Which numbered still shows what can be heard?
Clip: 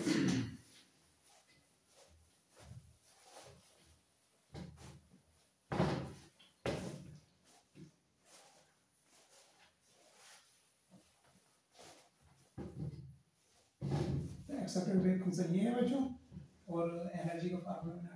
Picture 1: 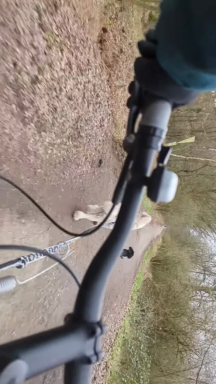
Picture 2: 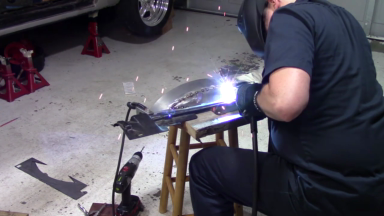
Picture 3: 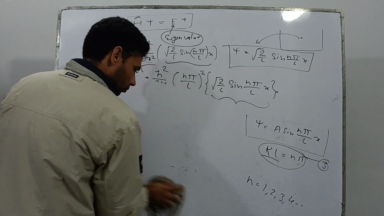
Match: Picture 3